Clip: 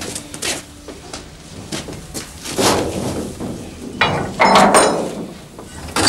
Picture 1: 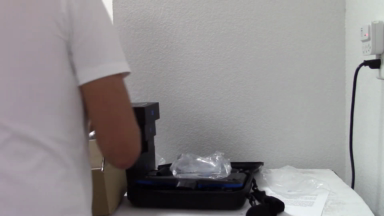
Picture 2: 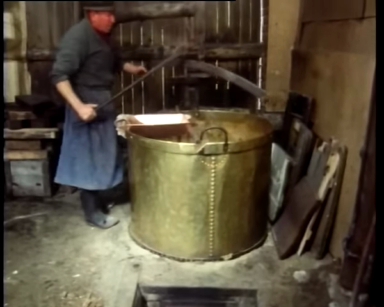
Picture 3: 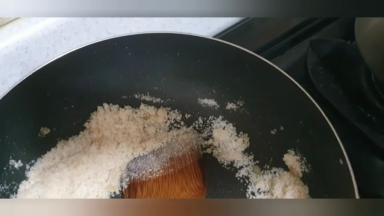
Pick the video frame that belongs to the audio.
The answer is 2